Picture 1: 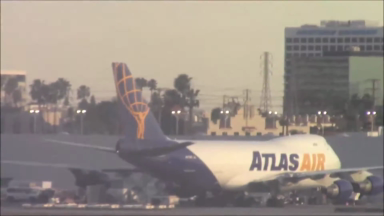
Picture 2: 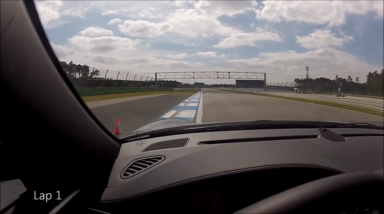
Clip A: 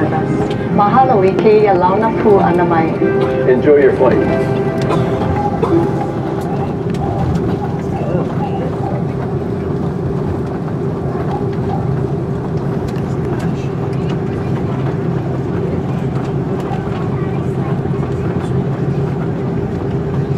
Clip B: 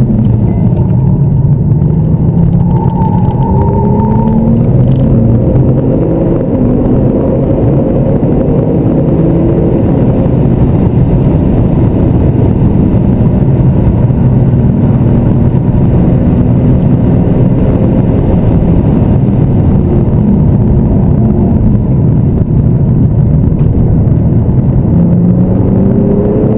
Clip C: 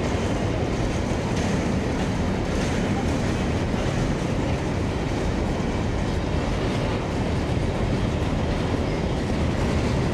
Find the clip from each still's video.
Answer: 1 A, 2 B